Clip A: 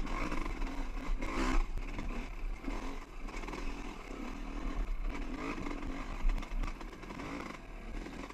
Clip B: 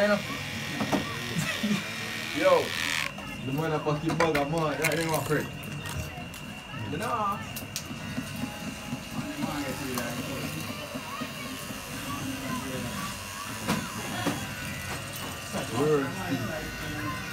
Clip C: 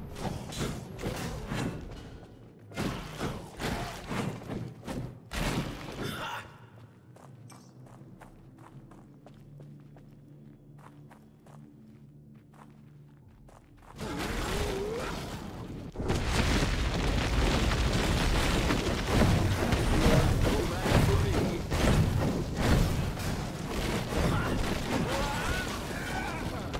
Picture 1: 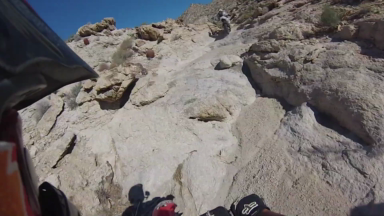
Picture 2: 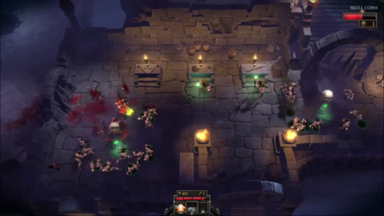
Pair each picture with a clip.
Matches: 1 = A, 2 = C